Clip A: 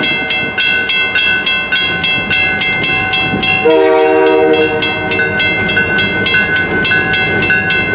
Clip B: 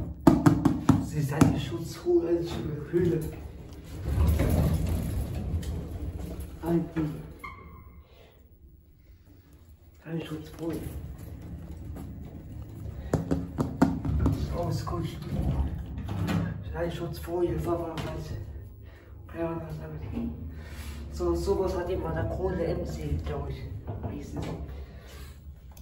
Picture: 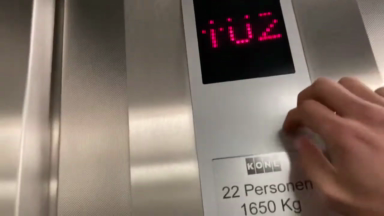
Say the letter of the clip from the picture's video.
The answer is B